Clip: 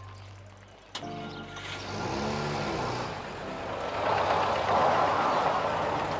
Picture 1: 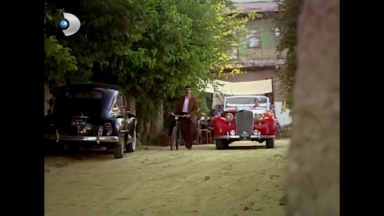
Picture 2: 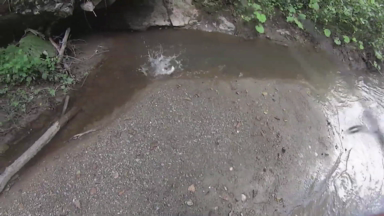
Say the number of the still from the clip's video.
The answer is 1